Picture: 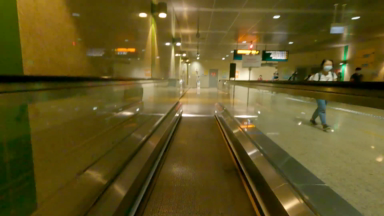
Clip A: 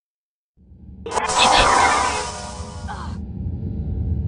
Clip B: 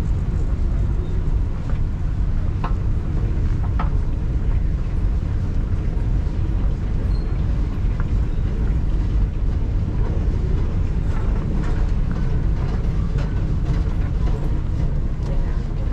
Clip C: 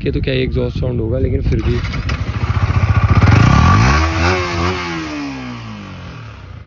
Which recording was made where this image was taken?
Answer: B